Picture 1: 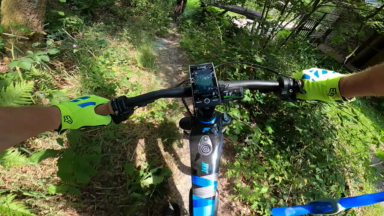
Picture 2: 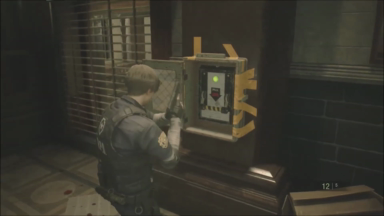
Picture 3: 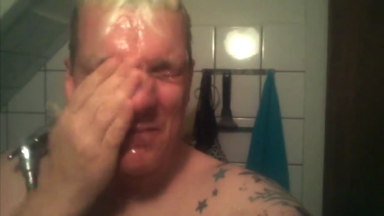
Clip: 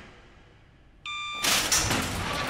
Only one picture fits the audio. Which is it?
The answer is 2